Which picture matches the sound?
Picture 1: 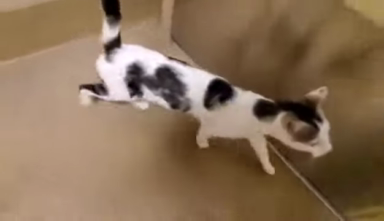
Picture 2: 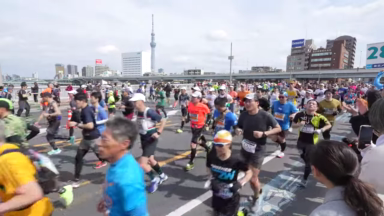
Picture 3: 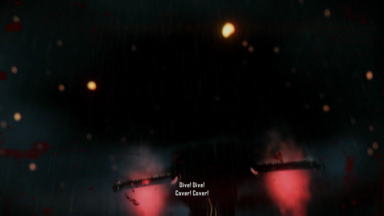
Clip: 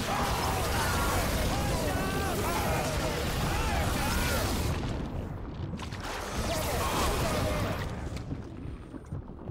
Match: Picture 3